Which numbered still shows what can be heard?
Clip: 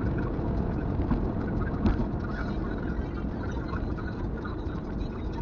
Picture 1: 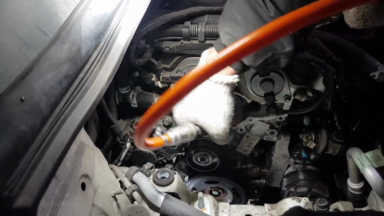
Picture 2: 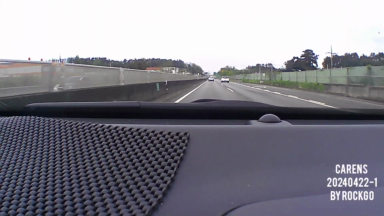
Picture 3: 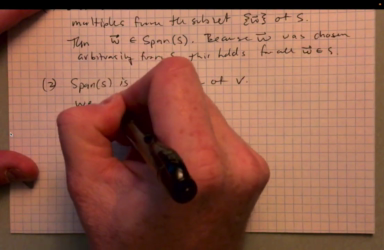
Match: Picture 2